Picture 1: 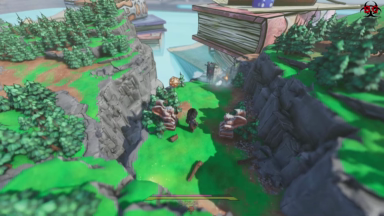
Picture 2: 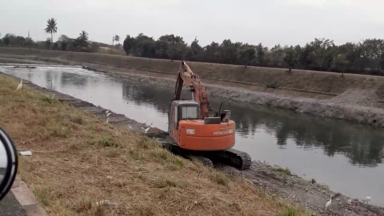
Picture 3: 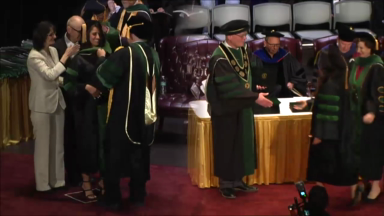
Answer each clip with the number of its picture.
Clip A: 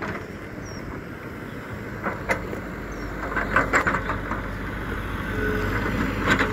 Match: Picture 2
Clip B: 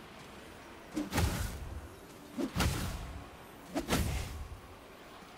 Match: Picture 1